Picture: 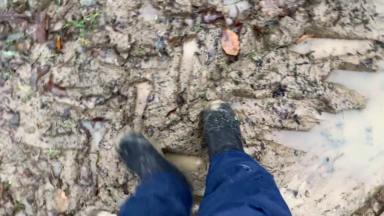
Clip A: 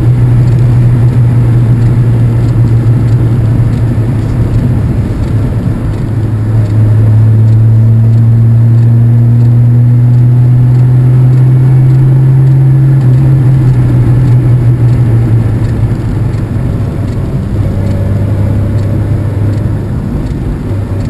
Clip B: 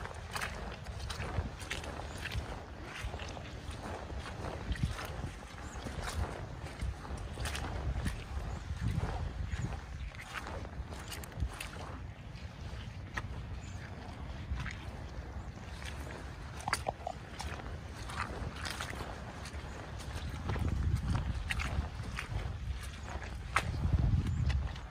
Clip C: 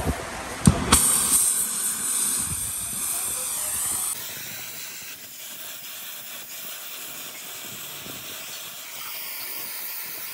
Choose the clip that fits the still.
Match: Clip B